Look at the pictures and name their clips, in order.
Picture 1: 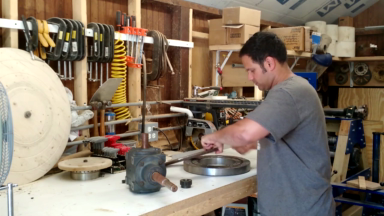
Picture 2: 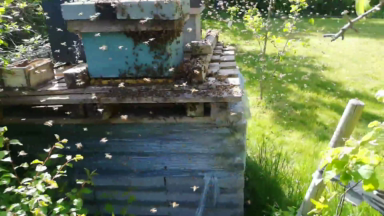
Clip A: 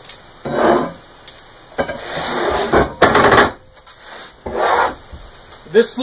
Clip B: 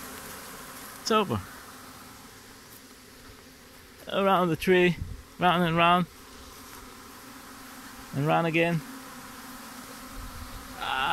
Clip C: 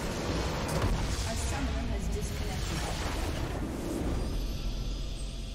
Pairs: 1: A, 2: B